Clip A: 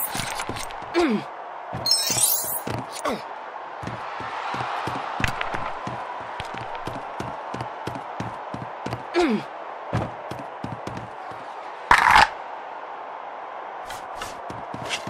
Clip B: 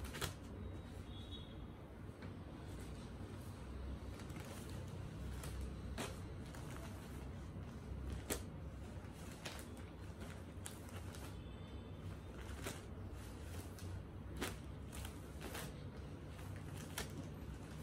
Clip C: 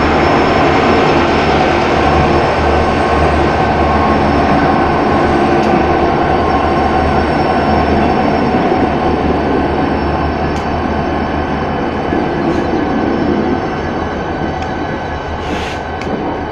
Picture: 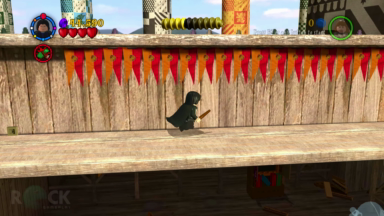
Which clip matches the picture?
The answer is A